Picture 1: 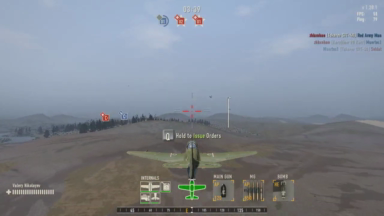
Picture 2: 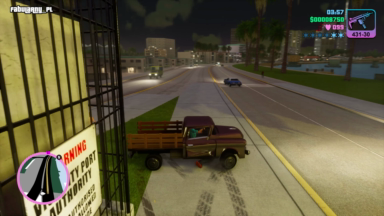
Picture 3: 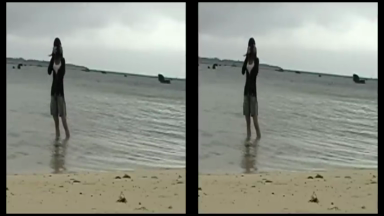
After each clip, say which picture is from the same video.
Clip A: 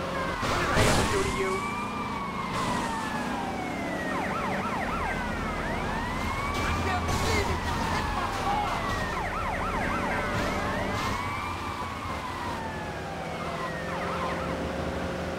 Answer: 2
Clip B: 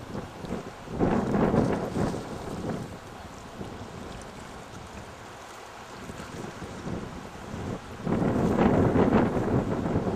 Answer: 3